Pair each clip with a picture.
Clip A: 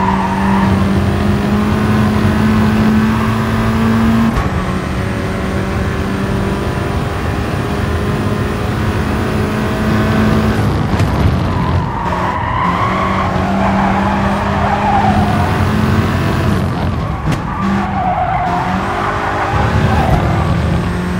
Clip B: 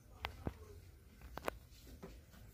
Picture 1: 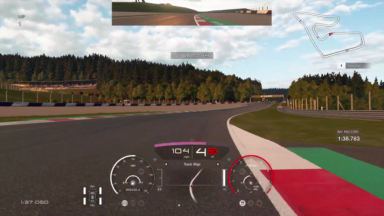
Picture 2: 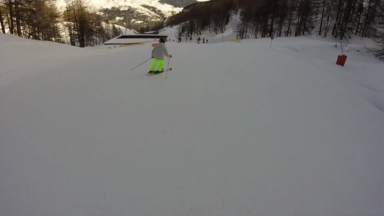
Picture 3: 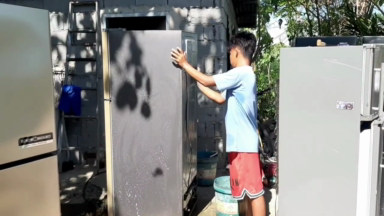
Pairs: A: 1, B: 3